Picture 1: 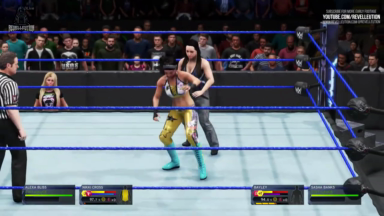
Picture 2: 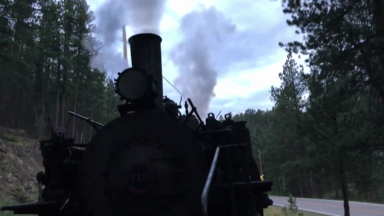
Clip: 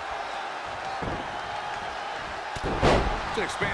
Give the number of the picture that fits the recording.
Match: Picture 1